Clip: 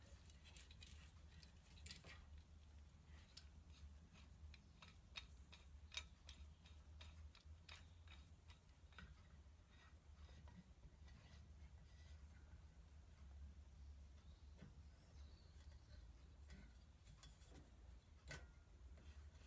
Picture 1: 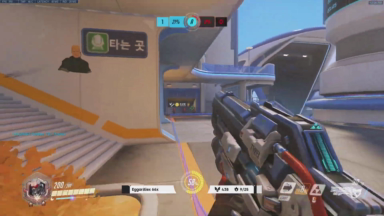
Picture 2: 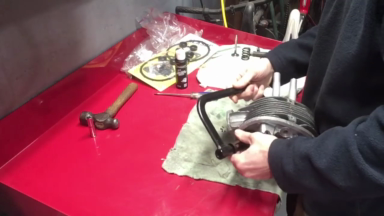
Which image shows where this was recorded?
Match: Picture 2